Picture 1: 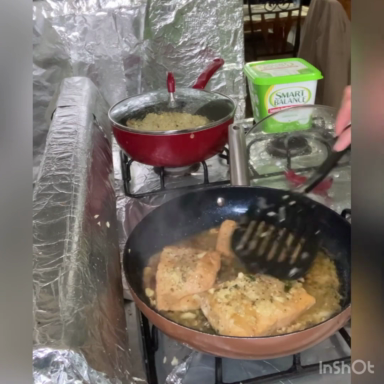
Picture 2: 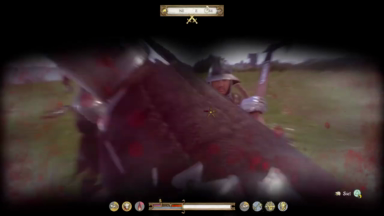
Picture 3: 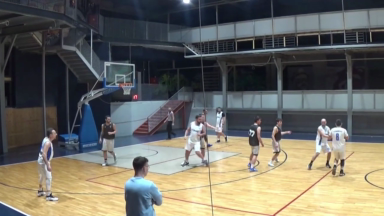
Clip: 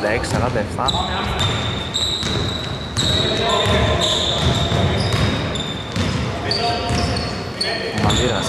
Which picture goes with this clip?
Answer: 3